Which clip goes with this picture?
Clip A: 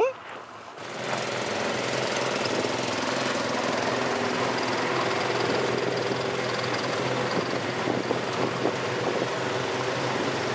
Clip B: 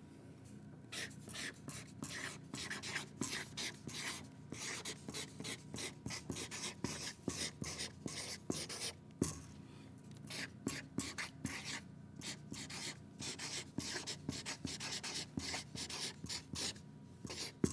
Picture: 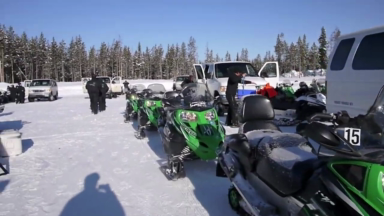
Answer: A